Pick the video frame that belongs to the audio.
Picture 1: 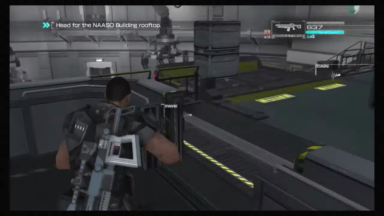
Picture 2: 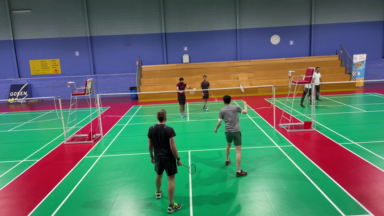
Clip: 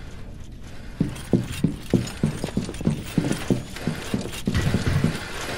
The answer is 1